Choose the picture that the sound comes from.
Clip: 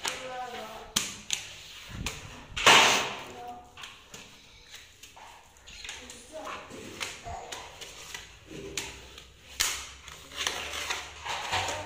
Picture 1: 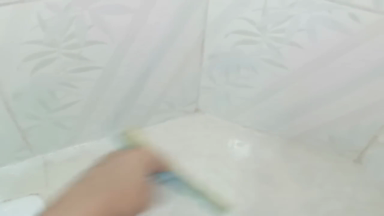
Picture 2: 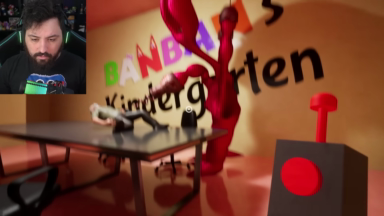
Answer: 1